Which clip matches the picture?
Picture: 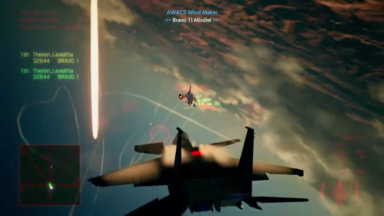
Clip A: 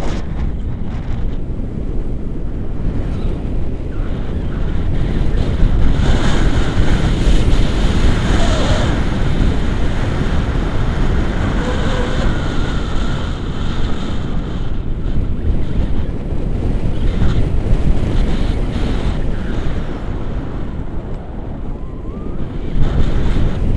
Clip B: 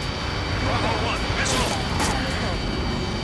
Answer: B